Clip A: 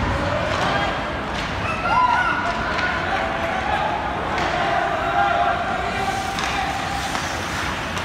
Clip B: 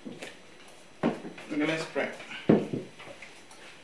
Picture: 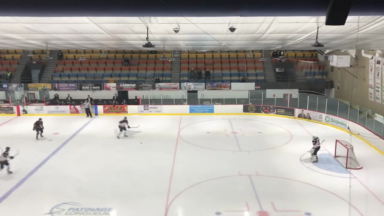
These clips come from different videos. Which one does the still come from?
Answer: A